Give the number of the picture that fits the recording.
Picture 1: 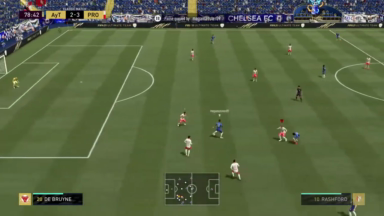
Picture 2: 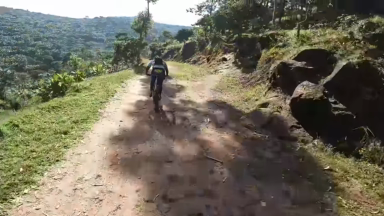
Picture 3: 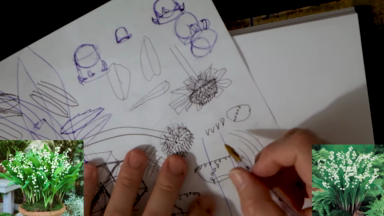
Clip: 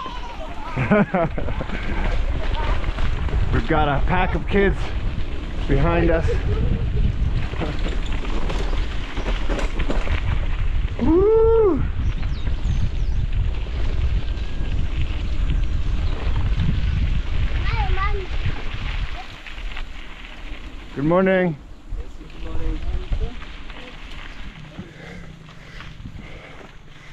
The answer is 2